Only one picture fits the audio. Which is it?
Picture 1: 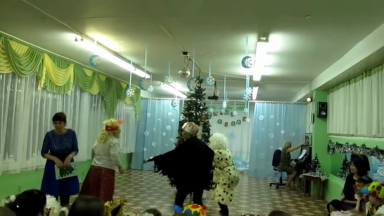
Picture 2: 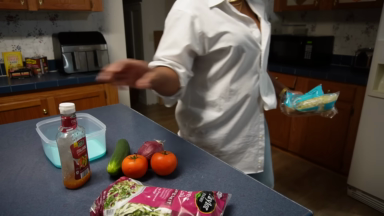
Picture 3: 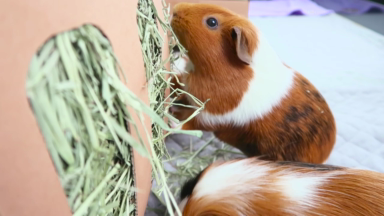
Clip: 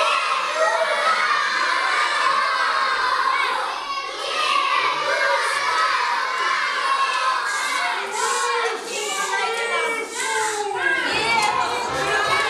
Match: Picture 1